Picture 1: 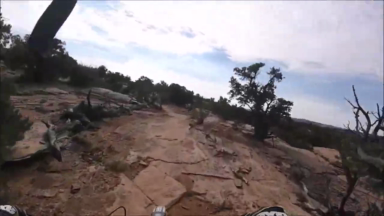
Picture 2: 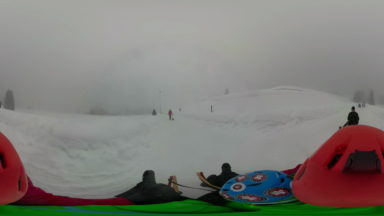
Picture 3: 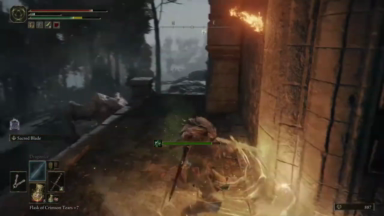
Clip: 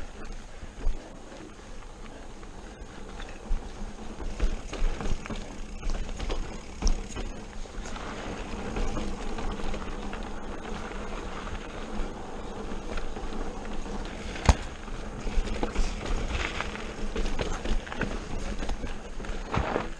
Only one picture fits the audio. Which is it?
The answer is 1